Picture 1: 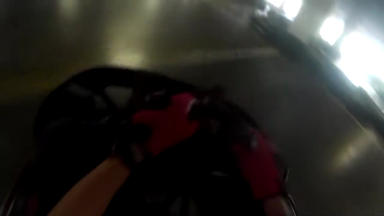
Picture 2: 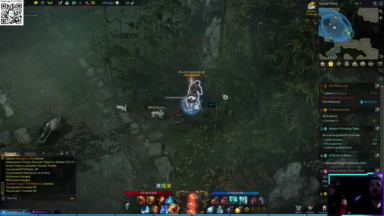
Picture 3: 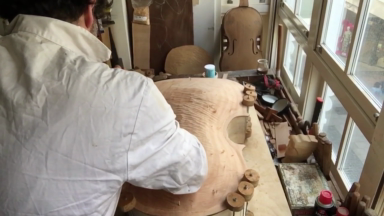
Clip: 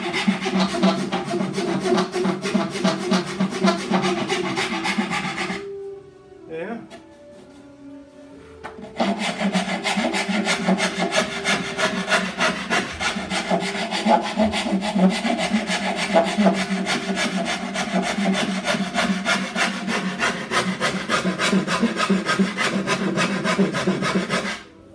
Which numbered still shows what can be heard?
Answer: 3